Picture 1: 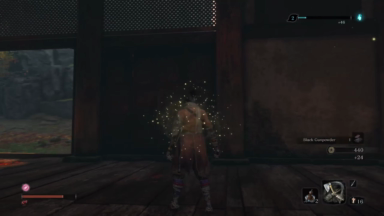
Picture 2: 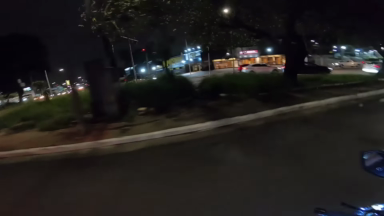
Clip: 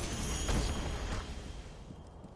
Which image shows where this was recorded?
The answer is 1